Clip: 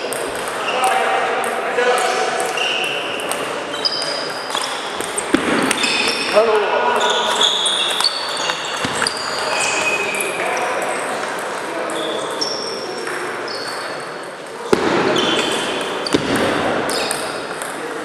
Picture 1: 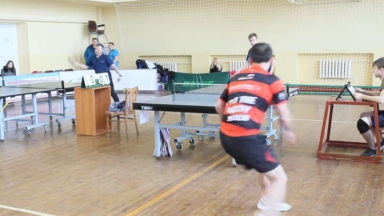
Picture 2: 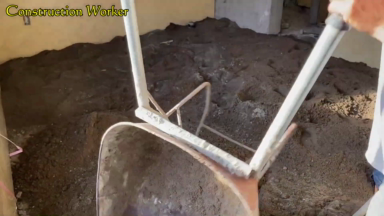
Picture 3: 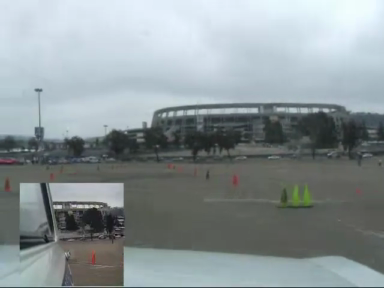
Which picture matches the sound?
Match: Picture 1